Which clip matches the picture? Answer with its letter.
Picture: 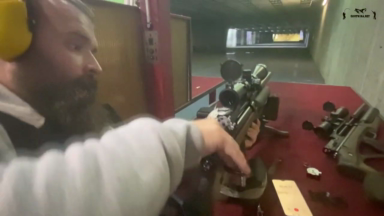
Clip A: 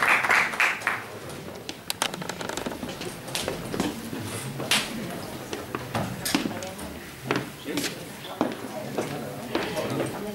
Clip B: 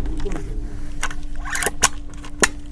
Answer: B